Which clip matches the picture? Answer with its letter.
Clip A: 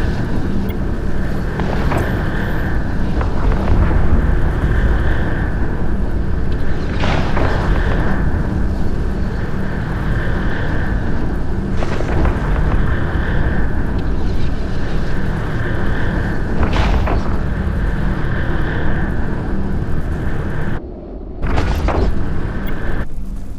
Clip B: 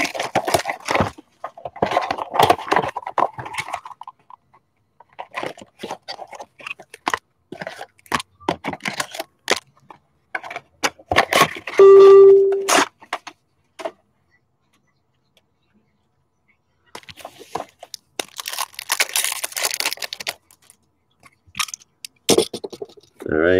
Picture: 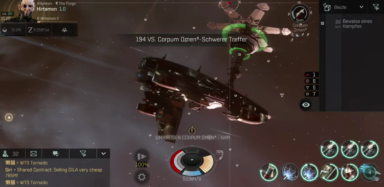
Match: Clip A